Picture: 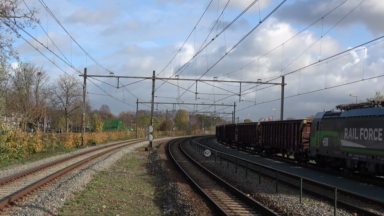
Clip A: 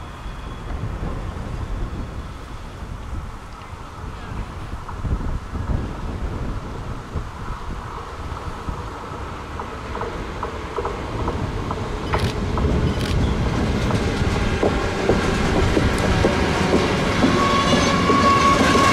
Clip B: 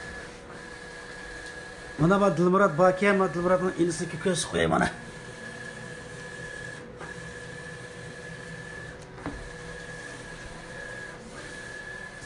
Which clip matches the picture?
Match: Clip A